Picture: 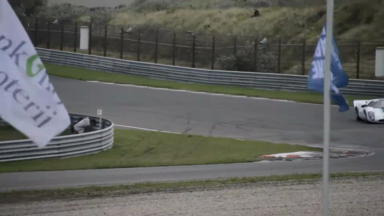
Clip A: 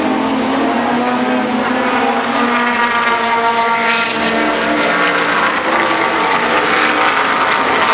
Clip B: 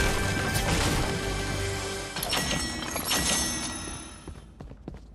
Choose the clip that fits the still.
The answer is A